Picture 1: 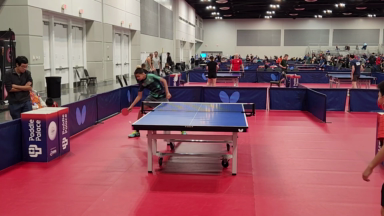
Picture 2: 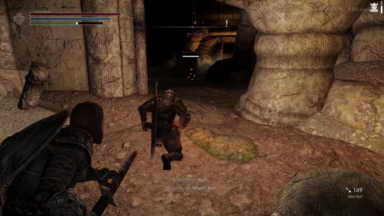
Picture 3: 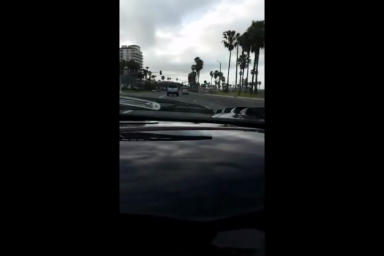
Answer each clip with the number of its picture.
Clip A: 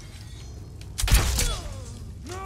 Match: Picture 2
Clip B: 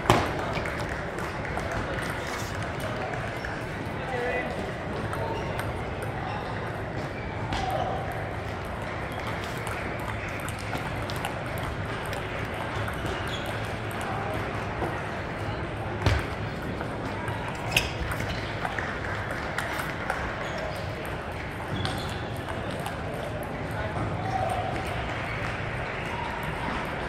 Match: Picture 1